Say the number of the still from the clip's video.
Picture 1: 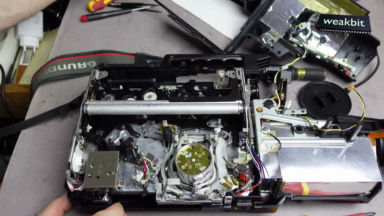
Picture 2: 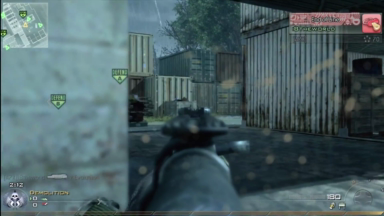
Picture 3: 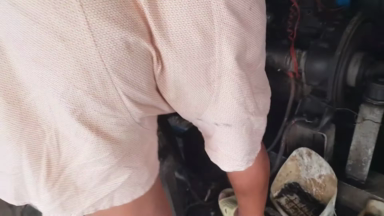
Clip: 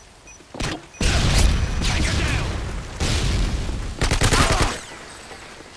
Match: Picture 2